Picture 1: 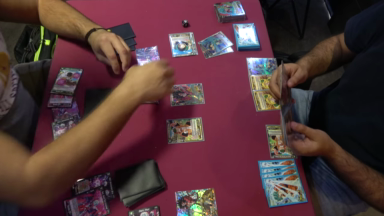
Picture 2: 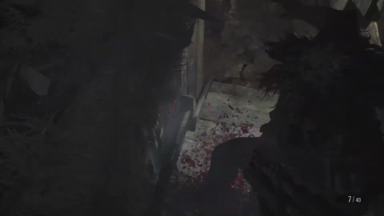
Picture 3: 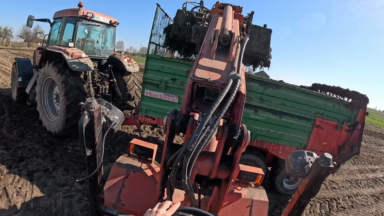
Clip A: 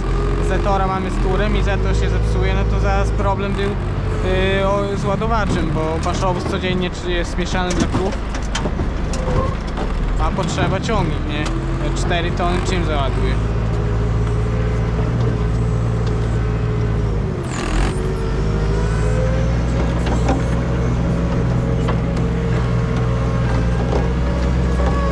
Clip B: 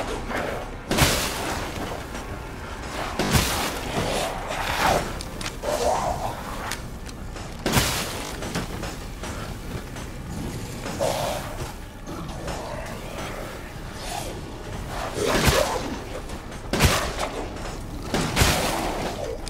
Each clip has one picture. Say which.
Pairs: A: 3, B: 2